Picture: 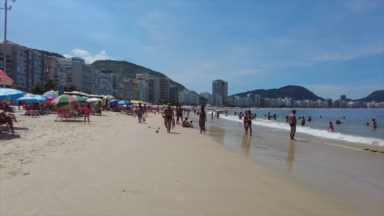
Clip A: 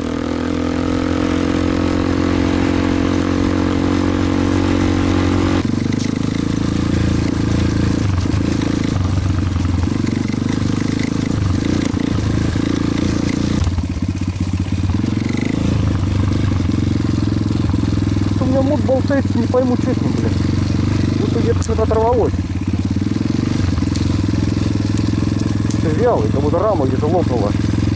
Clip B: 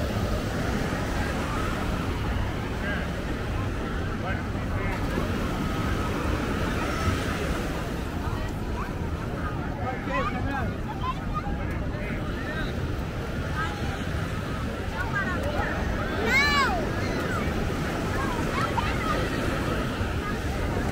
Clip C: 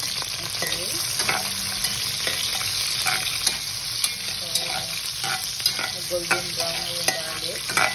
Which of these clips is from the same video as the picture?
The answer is B